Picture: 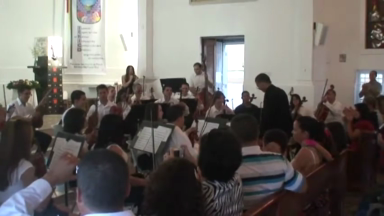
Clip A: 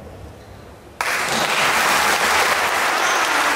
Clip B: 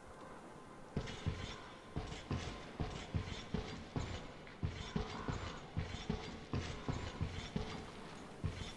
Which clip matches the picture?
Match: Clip A